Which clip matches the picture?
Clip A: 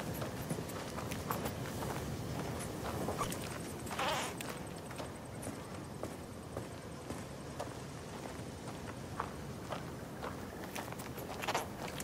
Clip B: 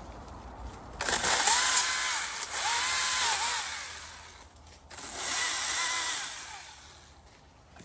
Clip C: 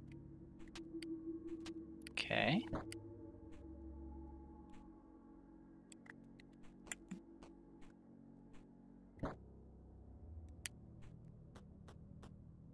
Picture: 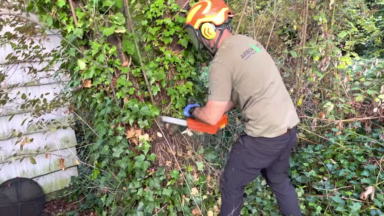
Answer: B